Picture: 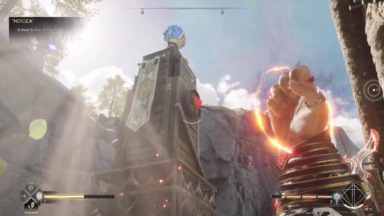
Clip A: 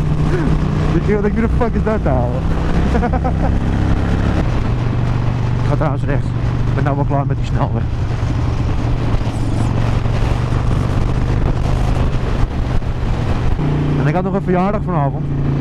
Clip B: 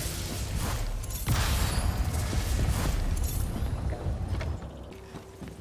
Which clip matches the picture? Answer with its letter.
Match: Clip B